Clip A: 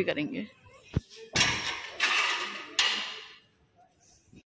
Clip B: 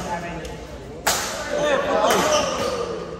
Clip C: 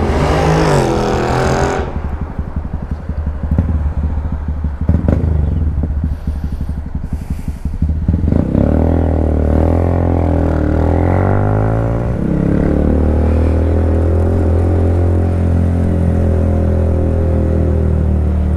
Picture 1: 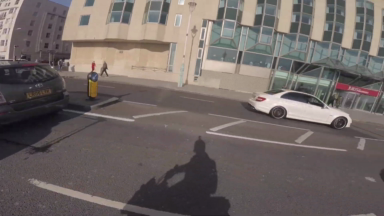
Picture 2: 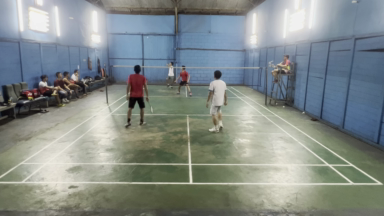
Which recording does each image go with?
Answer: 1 C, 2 B